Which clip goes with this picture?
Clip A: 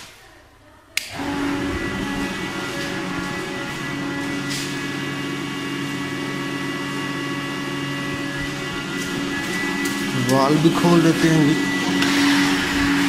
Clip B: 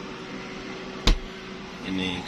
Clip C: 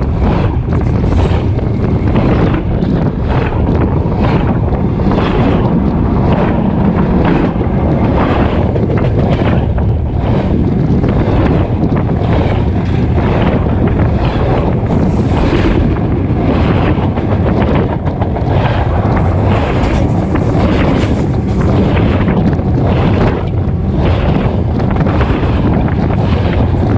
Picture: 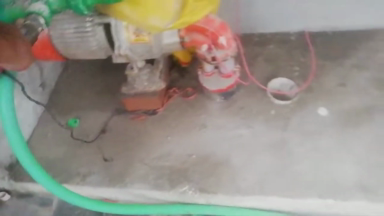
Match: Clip A